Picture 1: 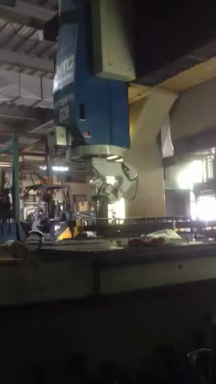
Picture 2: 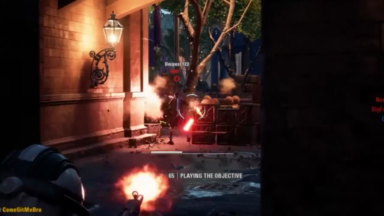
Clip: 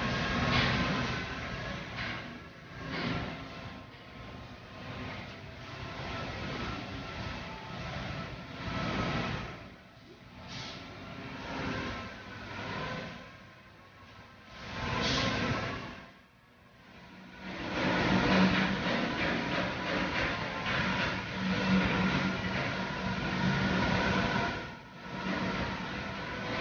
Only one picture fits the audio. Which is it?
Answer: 1